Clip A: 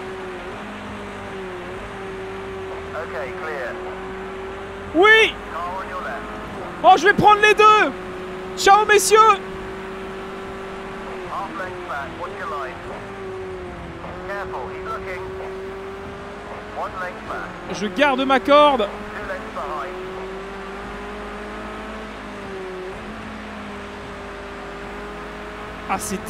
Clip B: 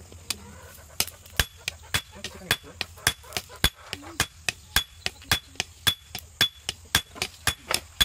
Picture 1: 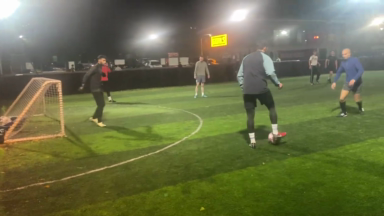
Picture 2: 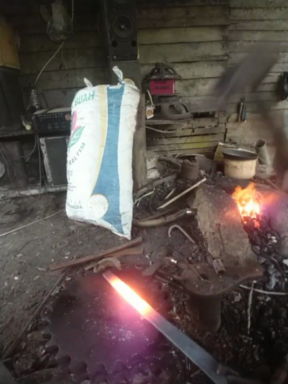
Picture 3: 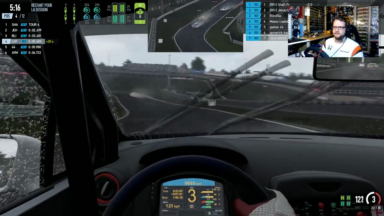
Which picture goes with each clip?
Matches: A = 3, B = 2